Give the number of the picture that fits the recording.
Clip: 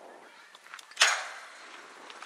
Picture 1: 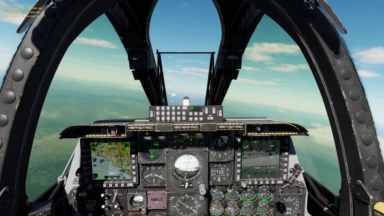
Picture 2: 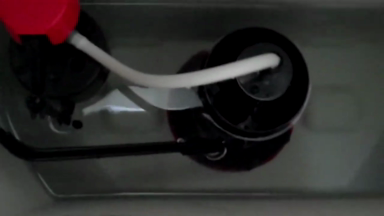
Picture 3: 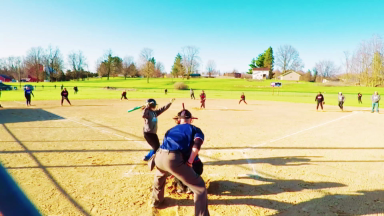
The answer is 3